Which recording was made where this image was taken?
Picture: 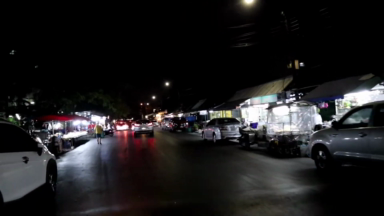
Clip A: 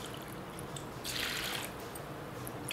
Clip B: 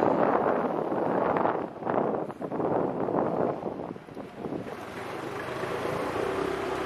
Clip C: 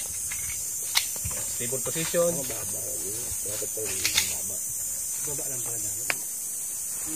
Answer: B